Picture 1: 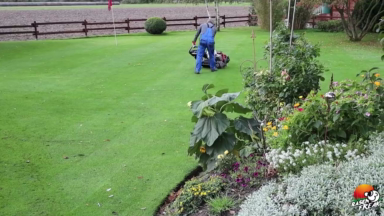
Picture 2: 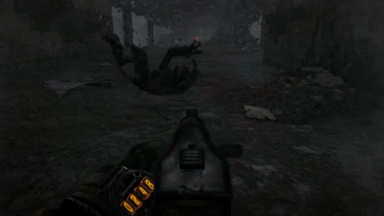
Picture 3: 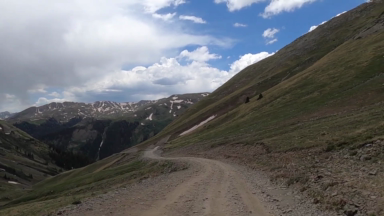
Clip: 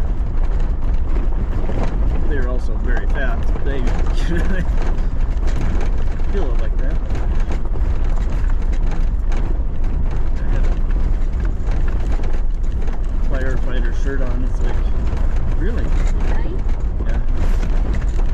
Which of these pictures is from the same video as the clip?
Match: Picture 3